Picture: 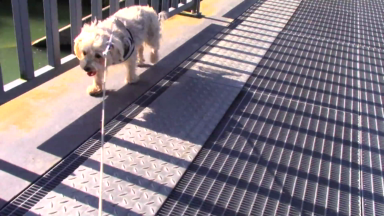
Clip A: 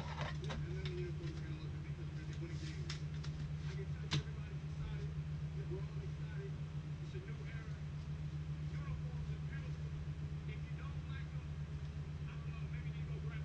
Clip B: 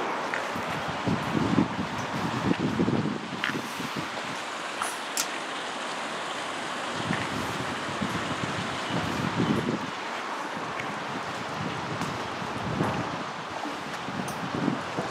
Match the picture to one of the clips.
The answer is B